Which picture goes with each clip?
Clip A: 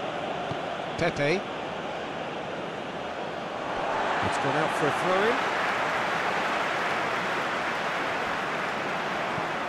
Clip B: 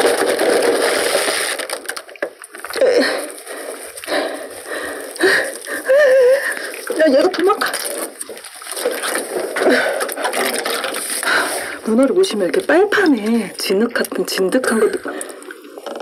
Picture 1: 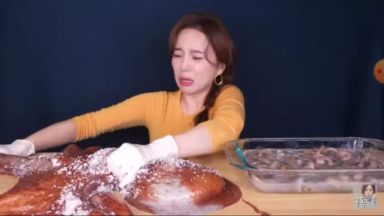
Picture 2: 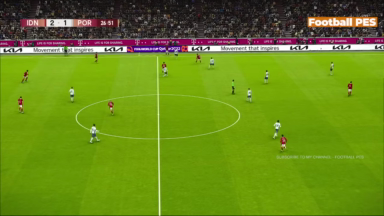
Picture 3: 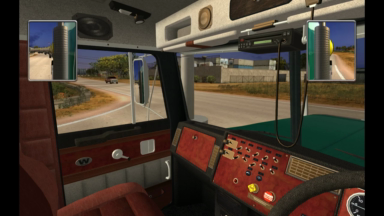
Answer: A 2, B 1